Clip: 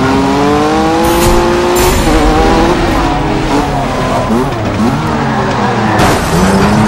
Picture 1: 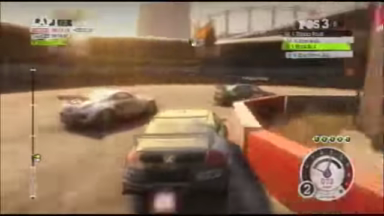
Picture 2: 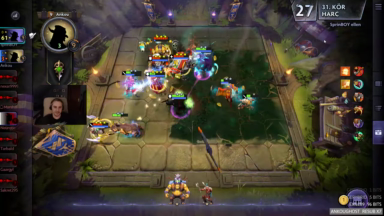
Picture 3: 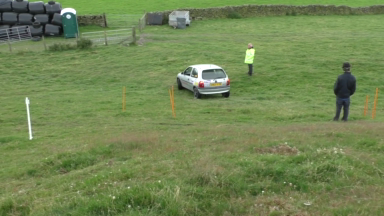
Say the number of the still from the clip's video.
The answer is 1